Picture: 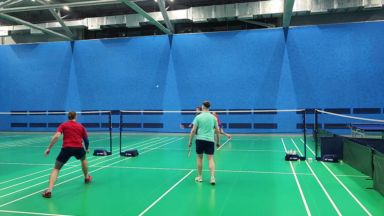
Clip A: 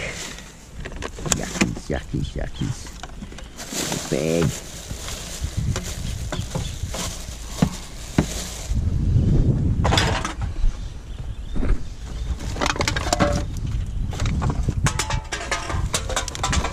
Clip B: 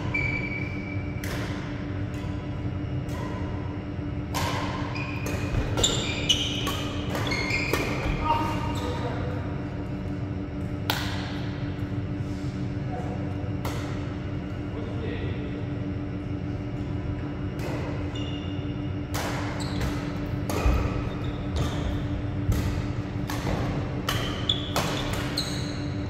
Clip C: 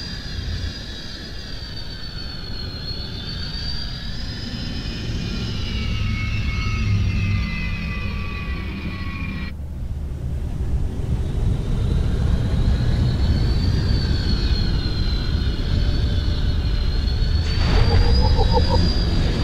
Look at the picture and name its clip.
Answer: B